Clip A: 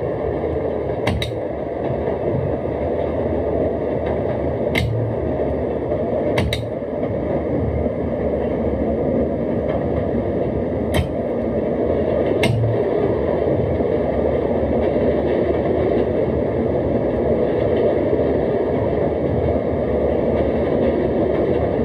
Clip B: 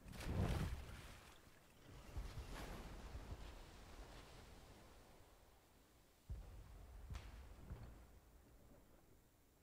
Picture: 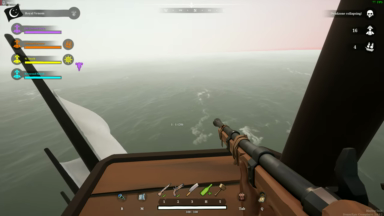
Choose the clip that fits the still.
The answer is B